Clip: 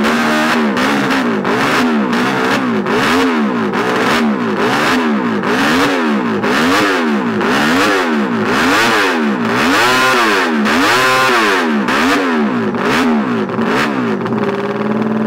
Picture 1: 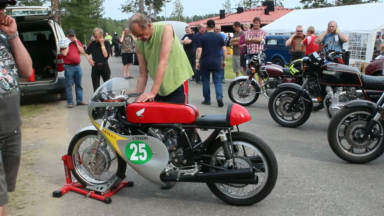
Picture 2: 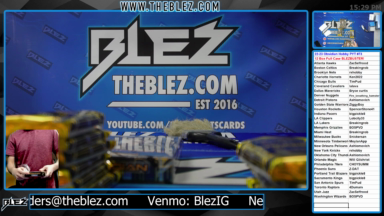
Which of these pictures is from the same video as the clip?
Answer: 1